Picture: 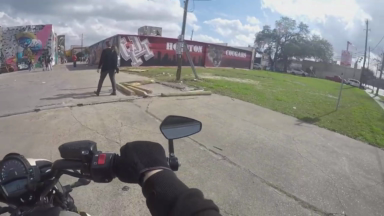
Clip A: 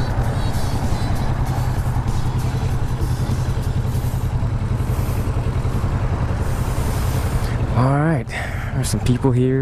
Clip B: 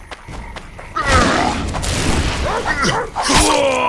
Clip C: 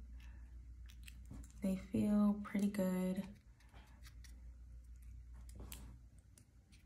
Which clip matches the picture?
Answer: A